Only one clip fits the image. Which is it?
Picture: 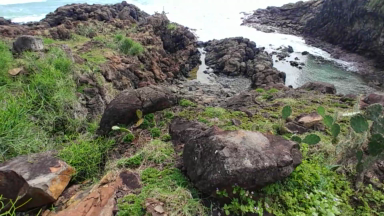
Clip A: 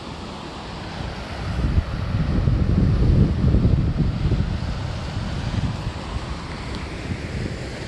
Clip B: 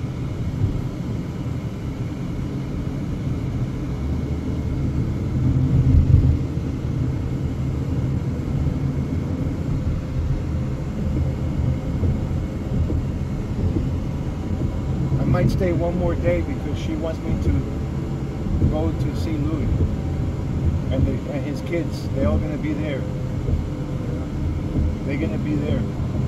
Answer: A